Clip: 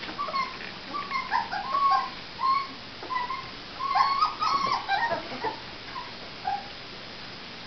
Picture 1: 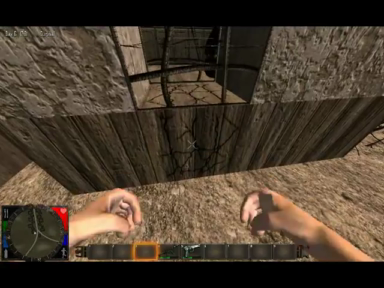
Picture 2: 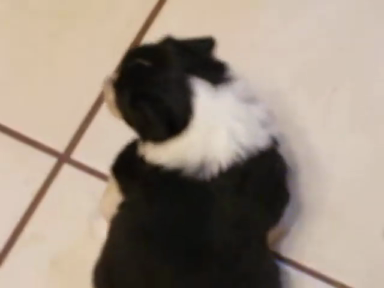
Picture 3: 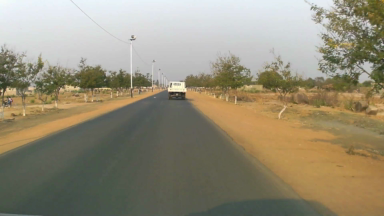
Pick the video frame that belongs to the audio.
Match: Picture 2